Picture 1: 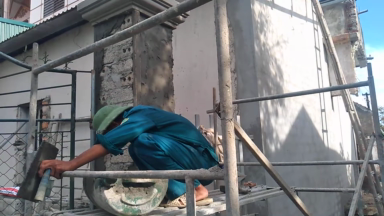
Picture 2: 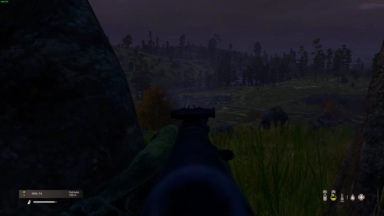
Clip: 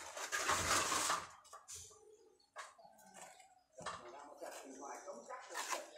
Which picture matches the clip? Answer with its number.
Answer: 1